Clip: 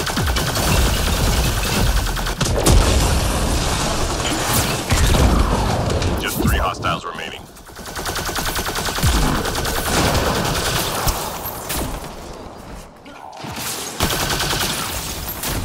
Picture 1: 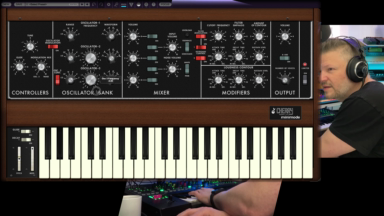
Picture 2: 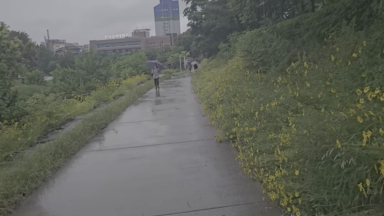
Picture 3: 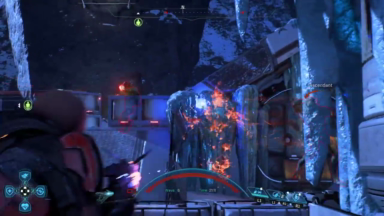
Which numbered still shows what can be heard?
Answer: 3